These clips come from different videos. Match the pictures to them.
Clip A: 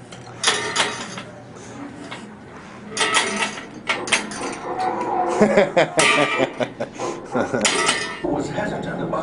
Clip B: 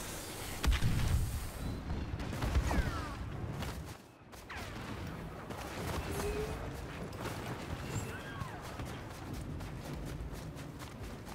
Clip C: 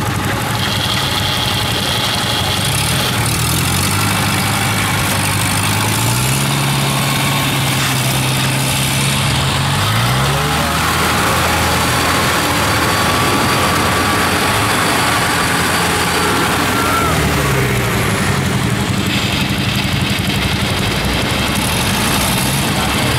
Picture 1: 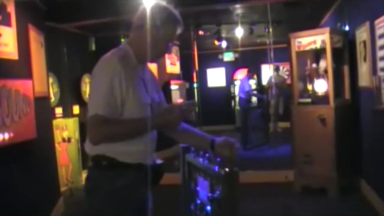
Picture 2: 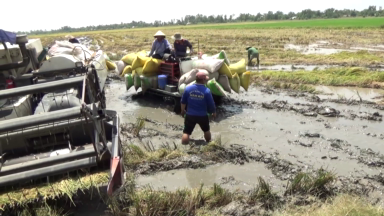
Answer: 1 A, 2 C